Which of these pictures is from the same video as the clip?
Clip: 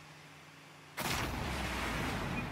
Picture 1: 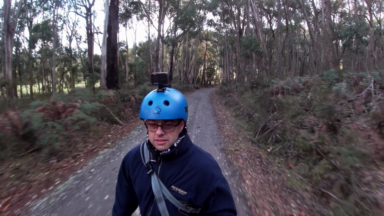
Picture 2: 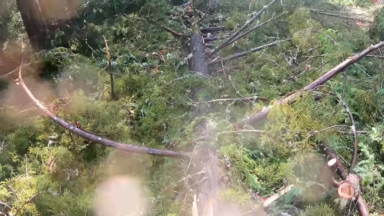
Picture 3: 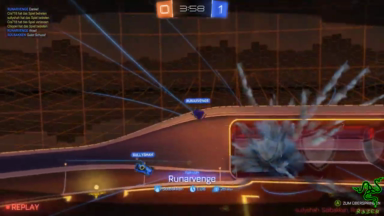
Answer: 3